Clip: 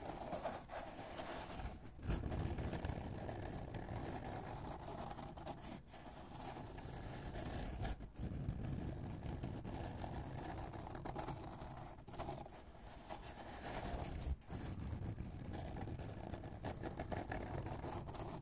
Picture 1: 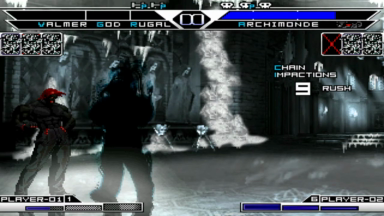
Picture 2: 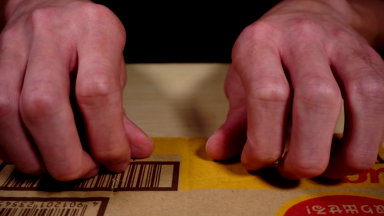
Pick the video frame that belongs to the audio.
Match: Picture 2